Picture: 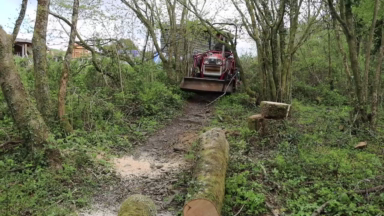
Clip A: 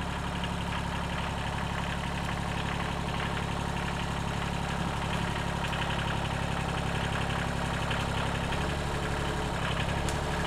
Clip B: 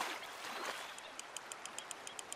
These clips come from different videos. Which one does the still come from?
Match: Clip A